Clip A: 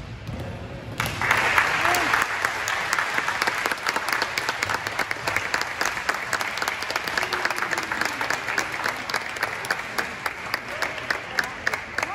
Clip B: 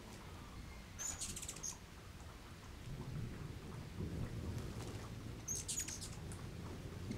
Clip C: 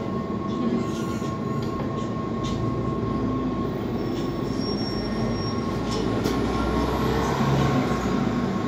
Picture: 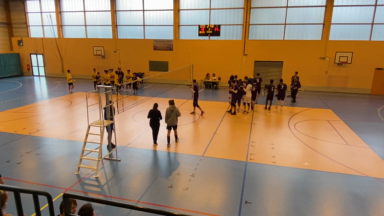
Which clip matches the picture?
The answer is A